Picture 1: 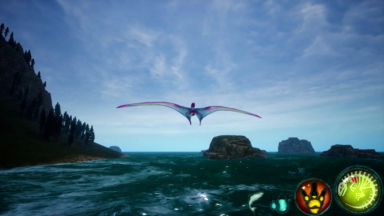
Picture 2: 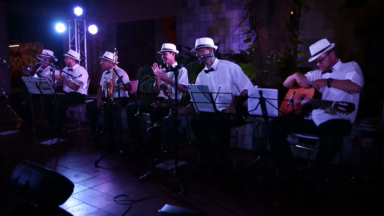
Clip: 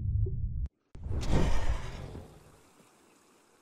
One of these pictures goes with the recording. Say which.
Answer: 1